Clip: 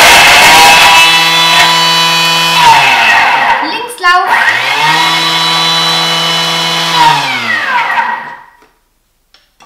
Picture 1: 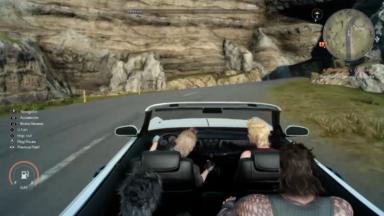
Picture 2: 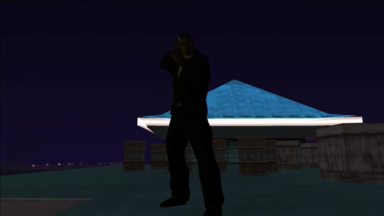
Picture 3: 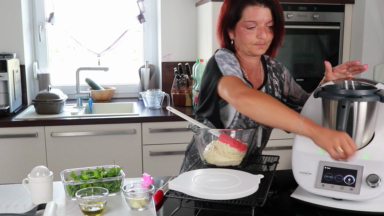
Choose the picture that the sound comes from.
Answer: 3